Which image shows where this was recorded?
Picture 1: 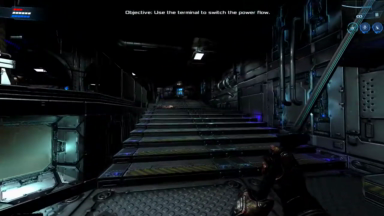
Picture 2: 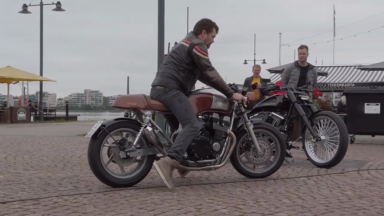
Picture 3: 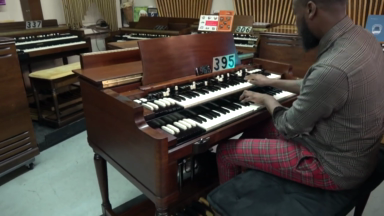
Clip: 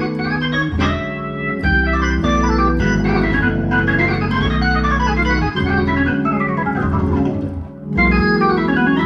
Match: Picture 3